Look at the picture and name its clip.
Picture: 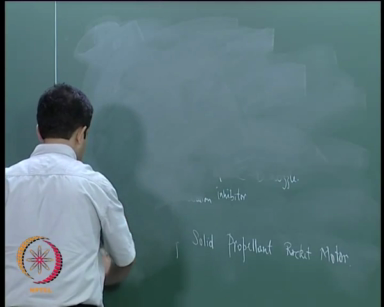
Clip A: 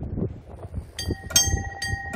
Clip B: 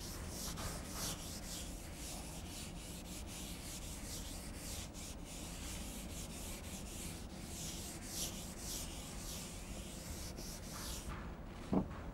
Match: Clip B